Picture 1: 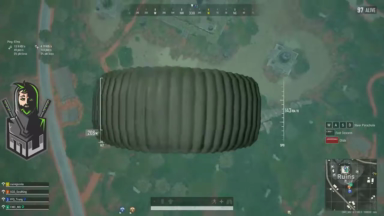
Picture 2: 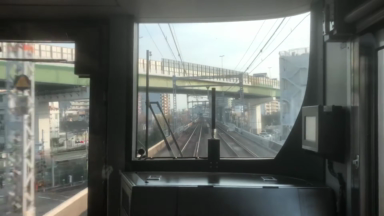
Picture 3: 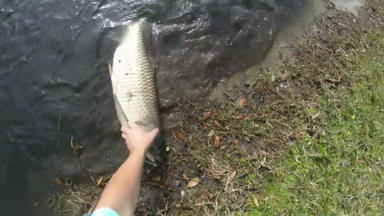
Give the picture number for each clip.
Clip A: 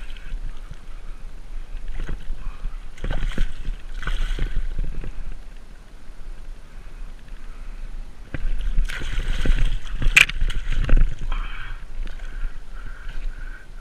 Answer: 3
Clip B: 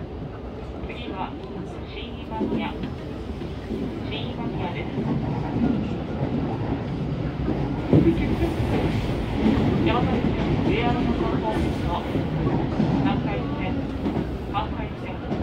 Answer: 2